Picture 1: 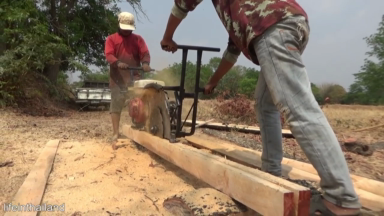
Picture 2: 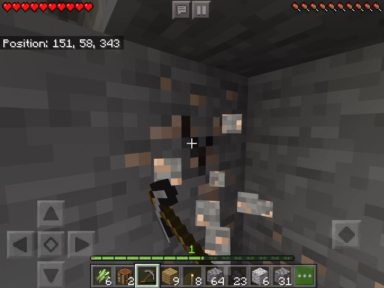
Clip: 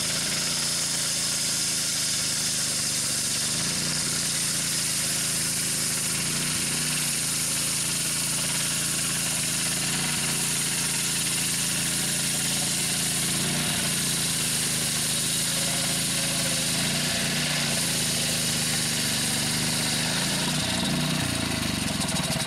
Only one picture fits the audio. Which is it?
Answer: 1